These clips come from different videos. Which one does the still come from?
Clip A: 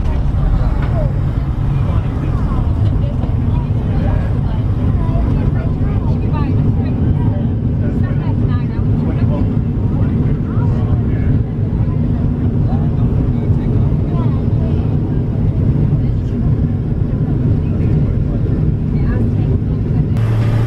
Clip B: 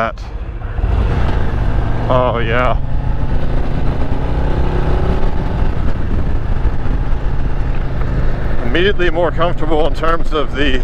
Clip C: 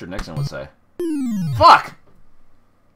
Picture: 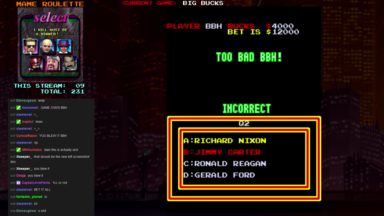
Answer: C